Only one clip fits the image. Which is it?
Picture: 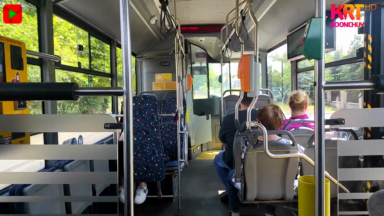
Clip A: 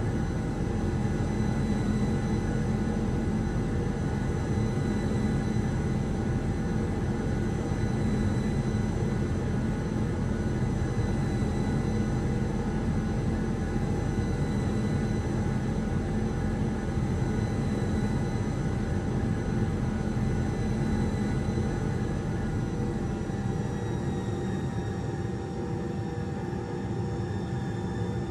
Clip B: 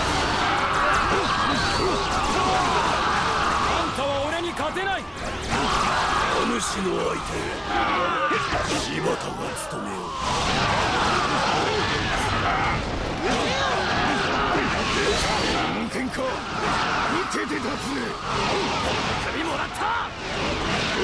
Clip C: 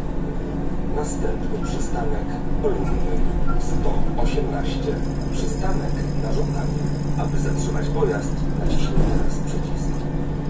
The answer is C